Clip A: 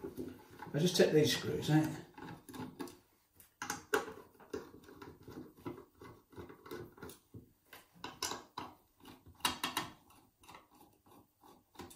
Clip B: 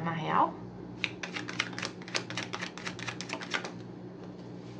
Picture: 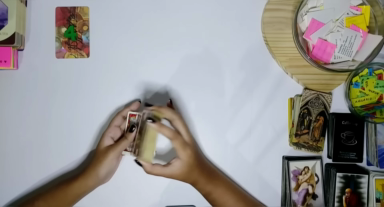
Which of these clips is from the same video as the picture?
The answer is B